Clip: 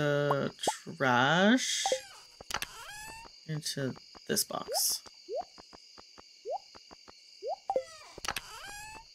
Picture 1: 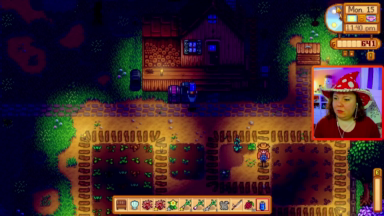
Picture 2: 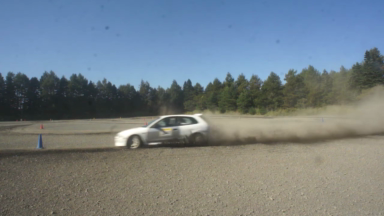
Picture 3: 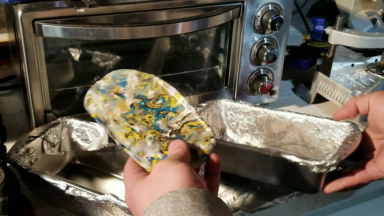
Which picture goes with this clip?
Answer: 1